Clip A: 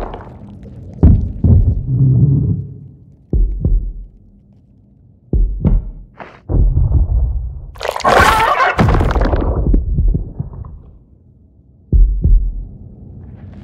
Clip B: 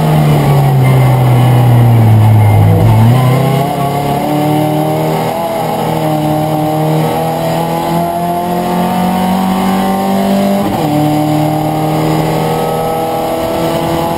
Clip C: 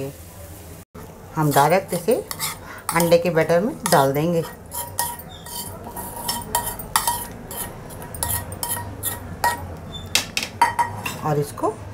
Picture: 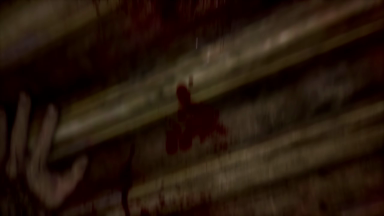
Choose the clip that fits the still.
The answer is A